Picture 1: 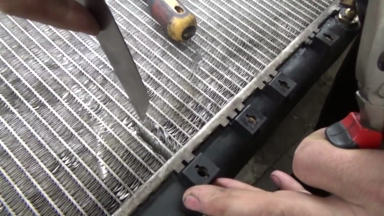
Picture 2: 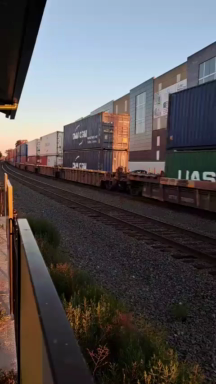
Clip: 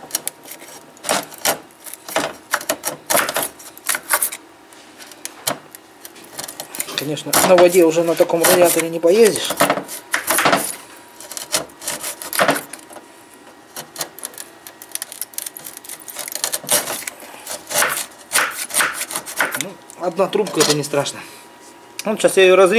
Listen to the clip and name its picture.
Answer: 1